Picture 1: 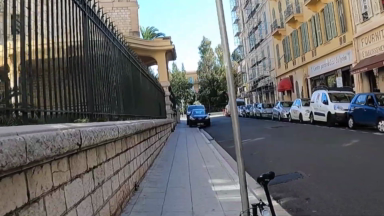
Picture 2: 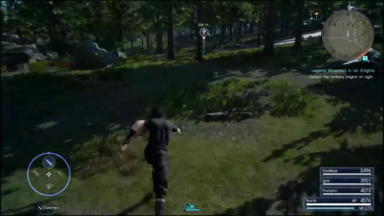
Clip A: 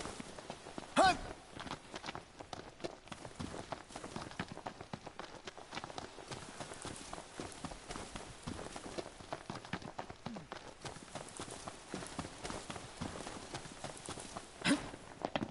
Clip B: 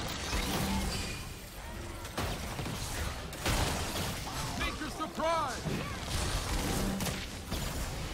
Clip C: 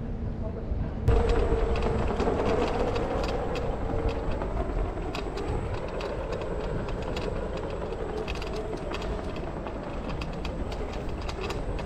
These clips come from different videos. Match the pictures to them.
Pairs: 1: C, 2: A